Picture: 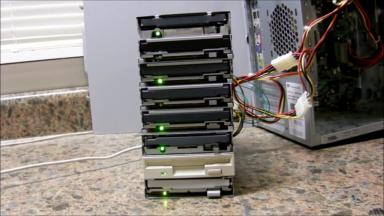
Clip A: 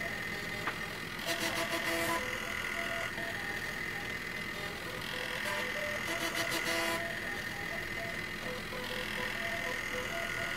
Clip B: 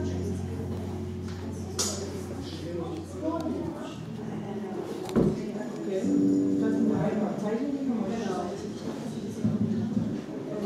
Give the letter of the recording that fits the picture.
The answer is A